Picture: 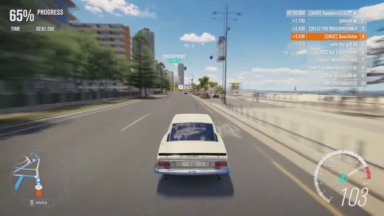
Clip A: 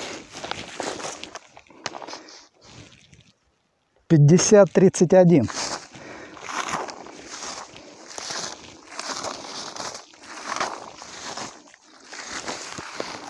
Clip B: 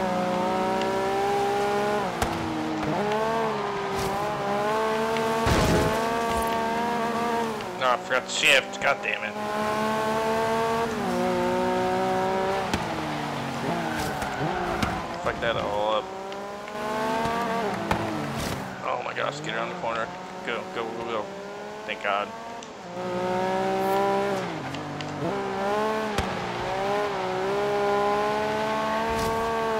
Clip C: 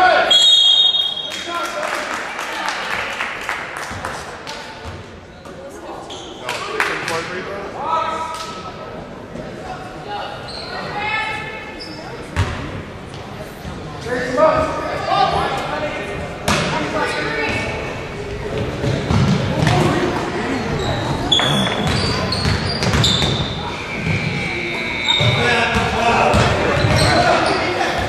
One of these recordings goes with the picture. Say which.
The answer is B